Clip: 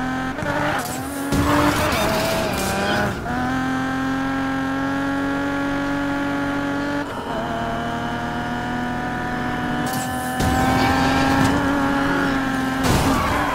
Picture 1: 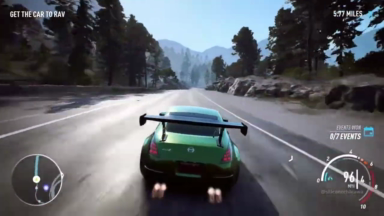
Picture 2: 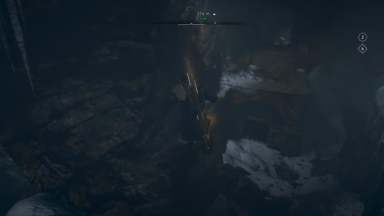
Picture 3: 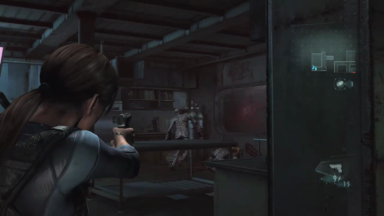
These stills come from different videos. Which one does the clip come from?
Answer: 1